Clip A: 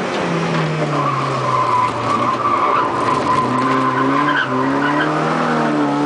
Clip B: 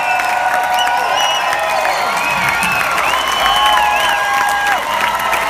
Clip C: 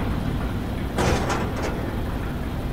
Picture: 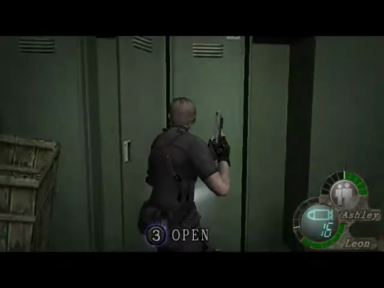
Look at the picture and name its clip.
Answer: C